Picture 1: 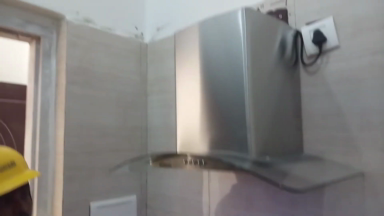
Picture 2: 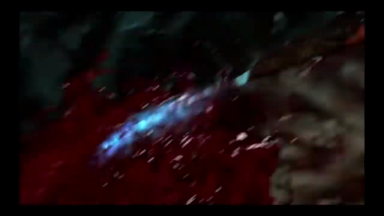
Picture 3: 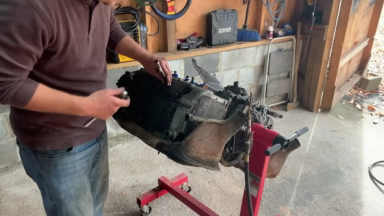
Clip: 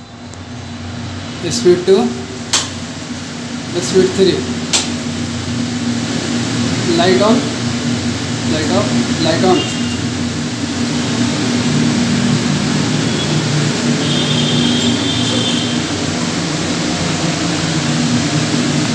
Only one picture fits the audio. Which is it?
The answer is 1